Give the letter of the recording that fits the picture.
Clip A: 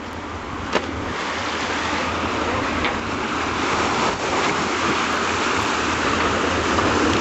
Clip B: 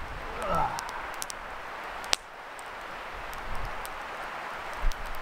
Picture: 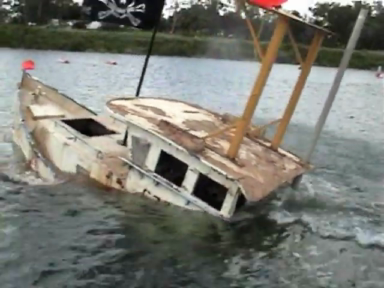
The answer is A